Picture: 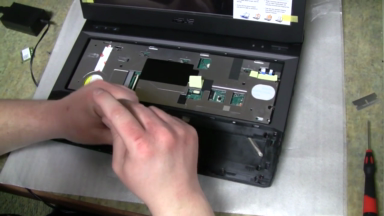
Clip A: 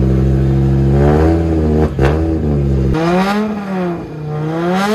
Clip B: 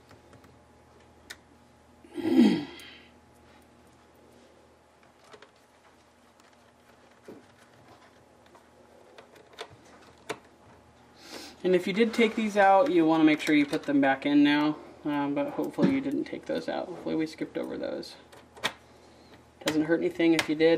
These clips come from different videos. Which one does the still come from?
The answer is B